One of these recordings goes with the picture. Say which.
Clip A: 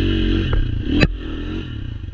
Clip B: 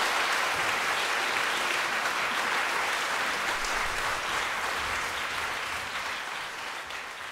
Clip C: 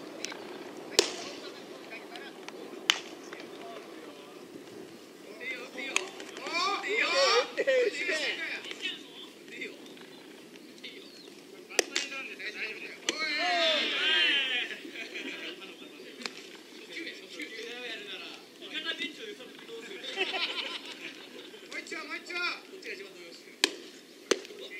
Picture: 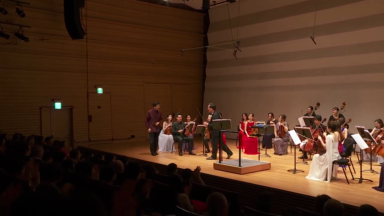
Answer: B